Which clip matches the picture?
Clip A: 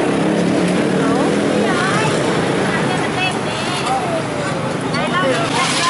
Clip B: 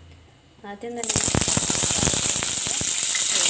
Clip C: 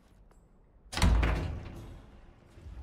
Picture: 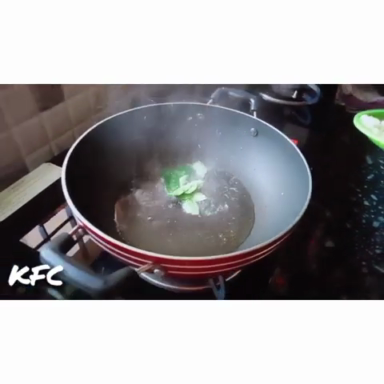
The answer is B